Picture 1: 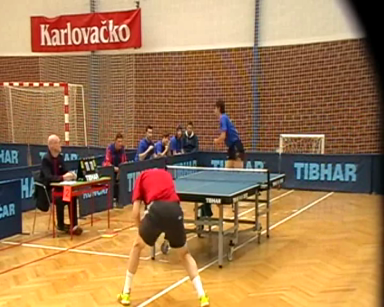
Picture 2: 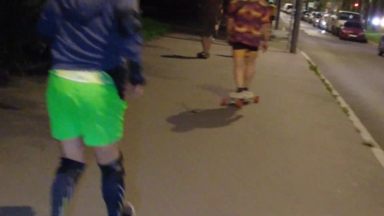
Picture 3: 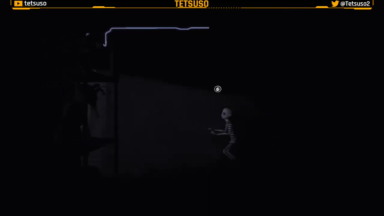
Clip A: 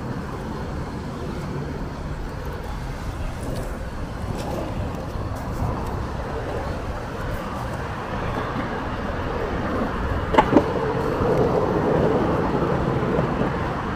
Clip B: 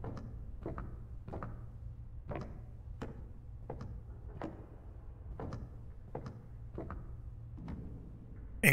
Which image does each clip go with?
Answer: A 2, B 3